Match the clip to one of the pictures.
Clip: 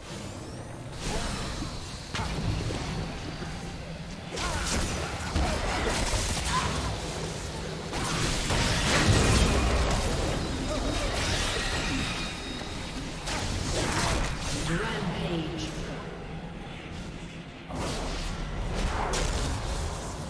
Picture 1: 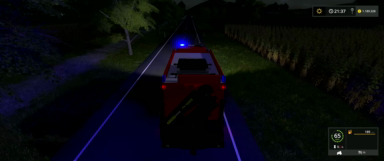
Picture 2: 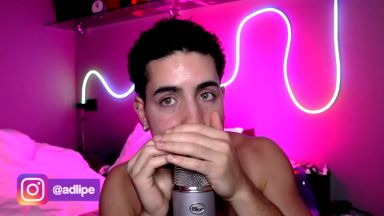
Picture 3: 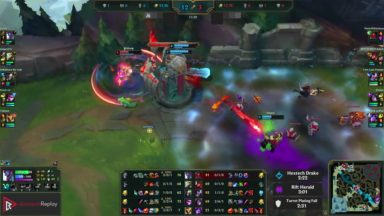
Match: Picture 3